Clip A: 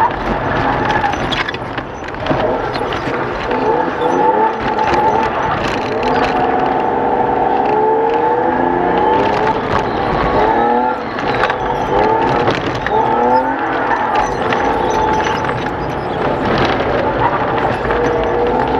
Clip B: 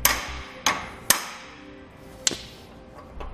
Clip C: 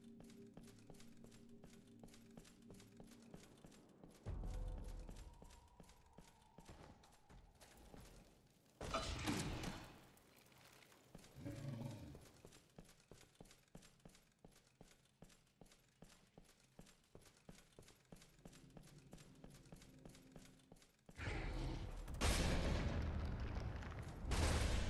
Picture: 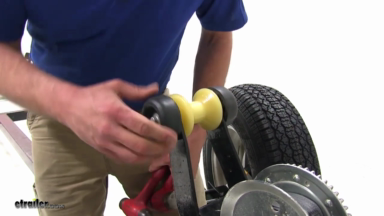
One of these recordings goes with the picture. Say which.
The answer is B